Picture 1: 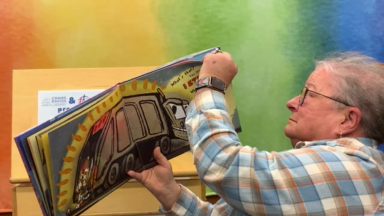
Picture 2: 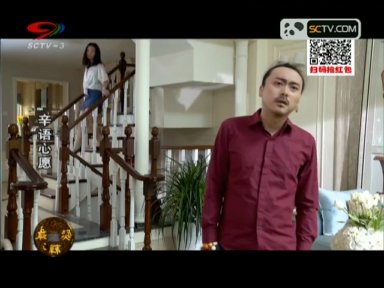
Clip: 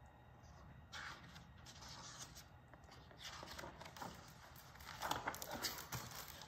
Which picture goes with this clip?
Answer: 1